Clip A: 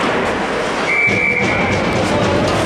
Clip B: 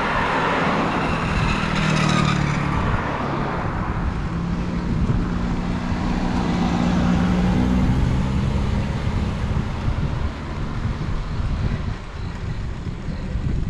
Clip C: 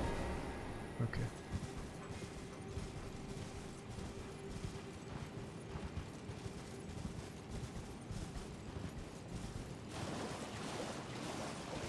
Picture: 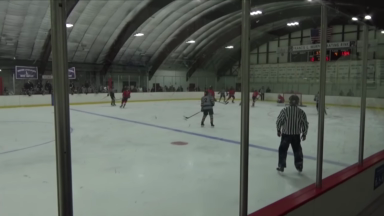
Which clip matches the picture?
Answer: A